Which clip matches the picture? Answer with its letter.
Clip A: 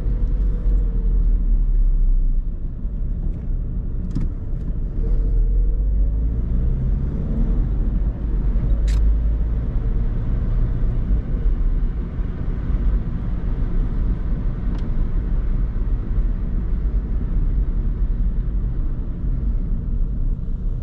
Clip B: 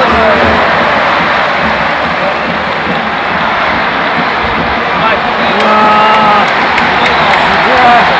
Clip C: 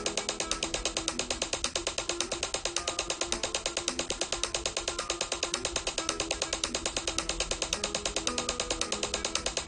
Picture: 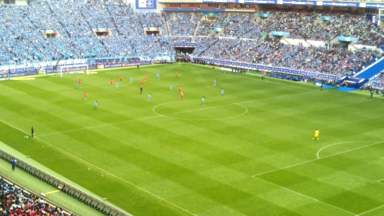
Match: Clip B